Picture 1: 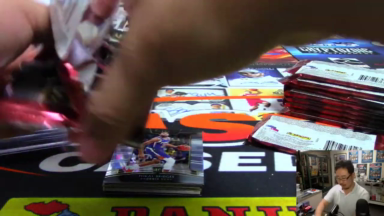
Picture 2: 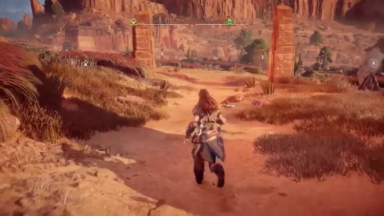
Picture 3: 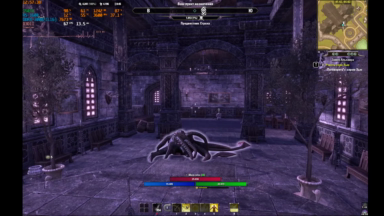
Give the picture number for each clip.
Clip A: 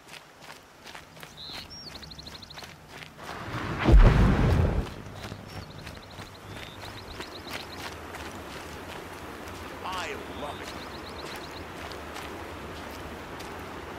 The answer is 2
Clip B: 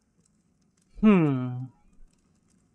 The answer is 3